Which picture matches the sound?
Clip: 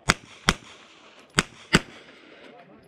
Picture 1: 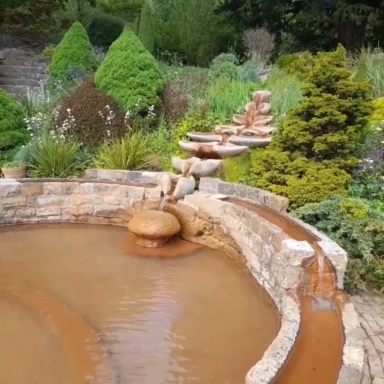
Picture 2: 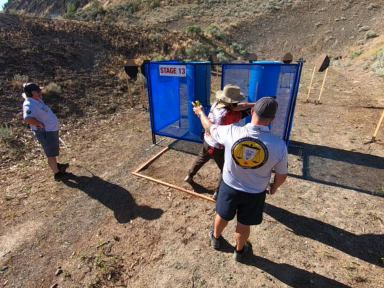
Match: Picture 2